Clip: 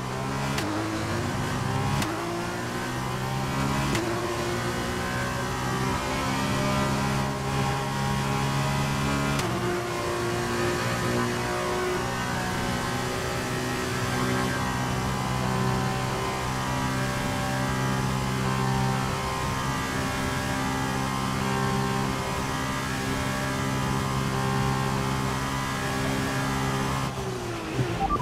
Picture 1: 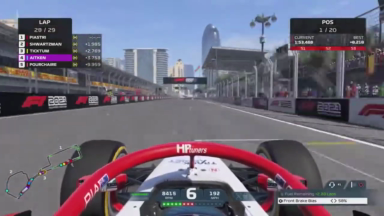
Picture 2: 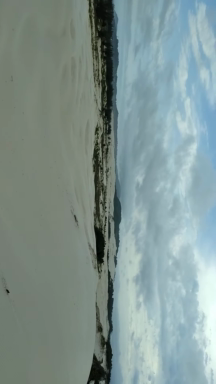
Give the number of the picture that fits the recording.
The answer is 1